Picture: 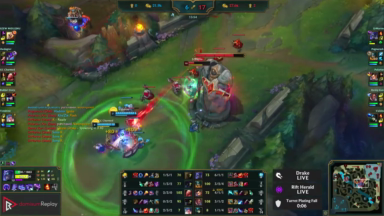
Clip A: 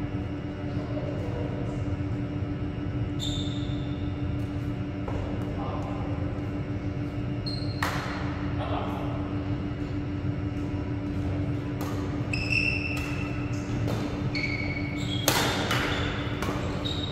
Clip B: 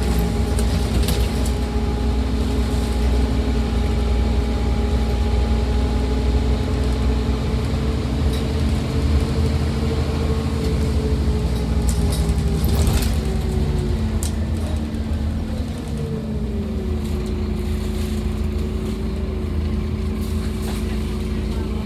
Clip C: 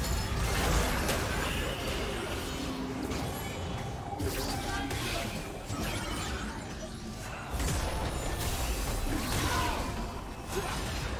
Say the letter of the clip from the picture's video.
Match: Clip C